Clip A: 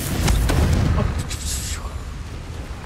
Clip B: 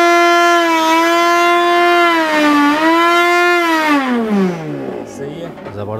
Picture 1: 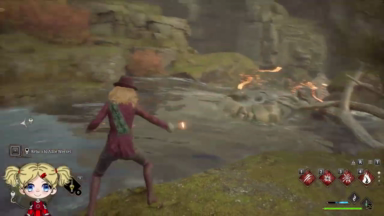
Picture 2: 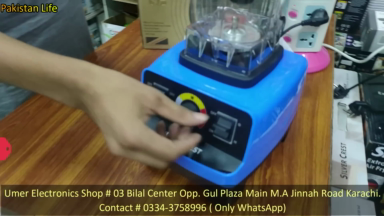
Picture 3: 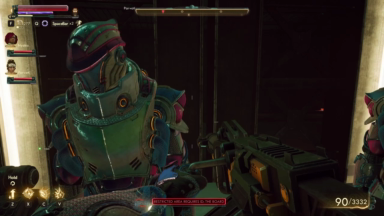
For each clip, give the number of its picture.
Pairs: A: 1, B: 2